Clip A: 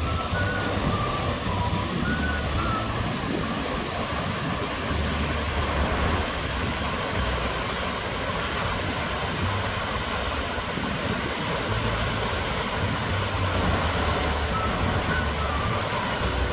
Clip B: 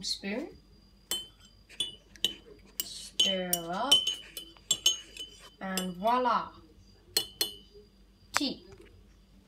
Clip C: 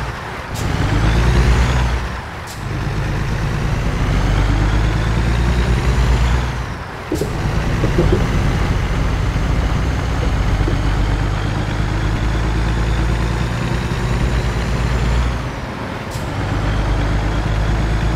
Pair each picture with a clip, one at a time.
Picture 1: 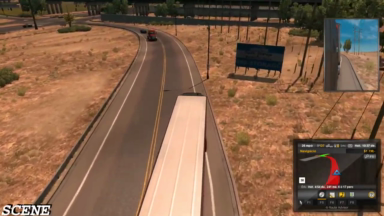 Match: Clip C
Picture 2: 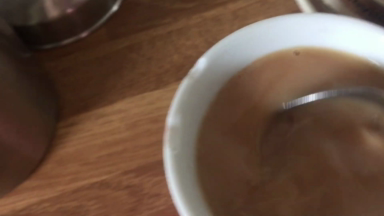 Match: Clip B